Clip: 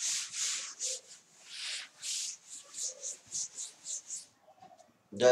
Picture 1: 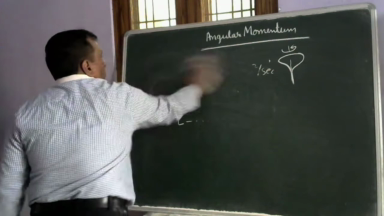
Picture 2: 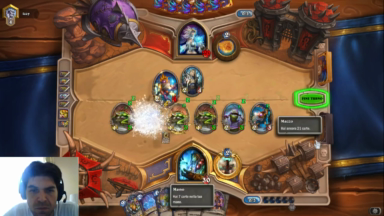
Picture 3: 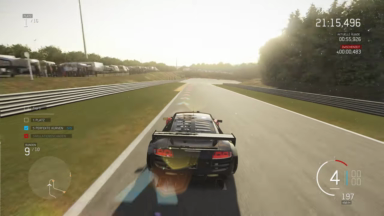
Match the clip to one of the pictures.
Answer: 1